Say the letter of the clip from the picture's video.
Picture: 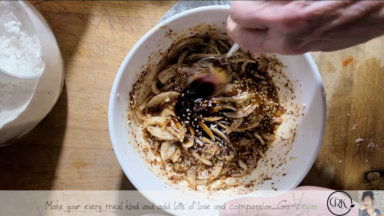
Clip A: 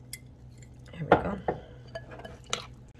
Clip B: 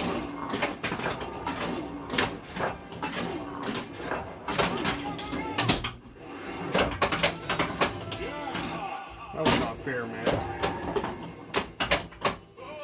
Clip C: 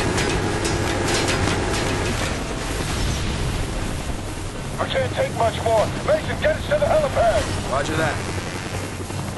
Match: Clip A